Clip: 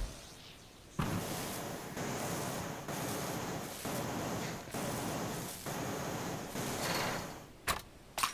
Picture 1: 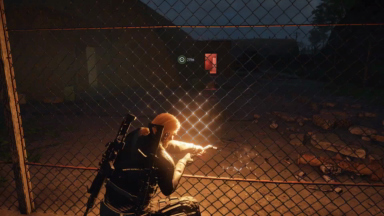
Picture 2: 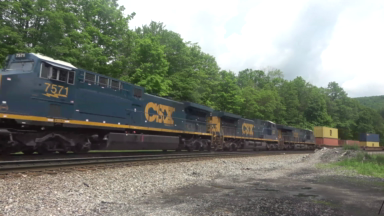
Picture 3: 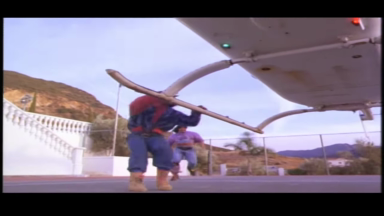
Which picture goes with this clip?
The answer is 1